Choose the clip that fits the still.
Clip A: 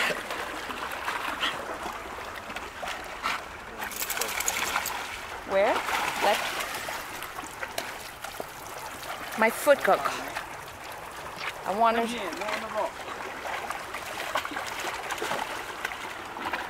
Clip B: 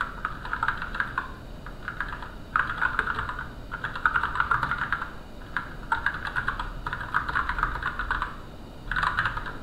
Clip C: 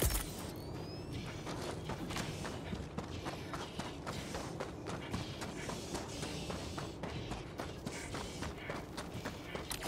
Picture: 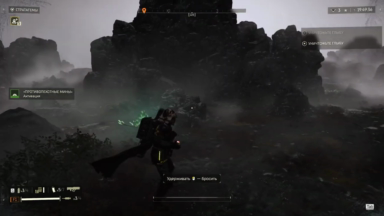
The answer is C